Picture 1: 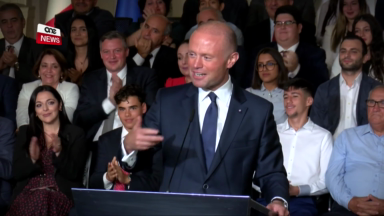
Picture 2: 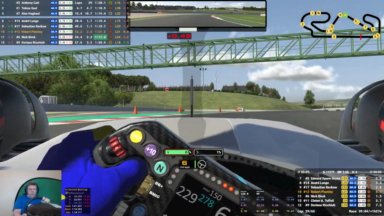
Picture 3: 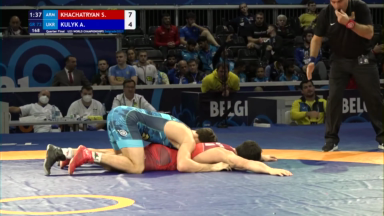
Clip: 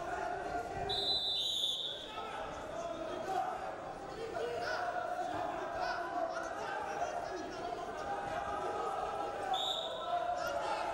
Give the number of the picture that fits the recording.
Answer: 3